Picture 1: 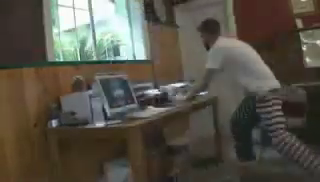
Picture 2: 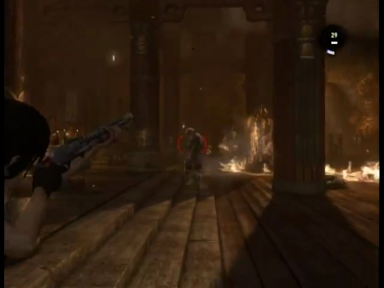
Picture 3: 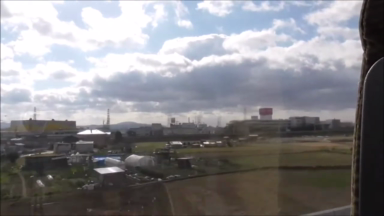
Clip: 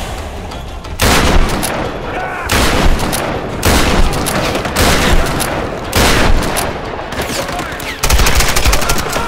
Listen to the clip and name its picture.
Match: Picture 2